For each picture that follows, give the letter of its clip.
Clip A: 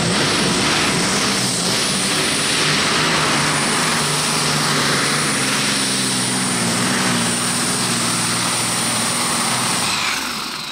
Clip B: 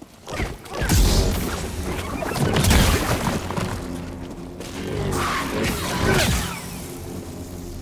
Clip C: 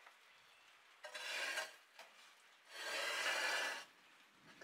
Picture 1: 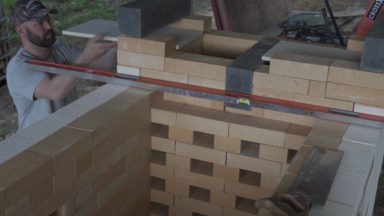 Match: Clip C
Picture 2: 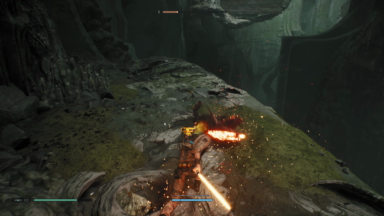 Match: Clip B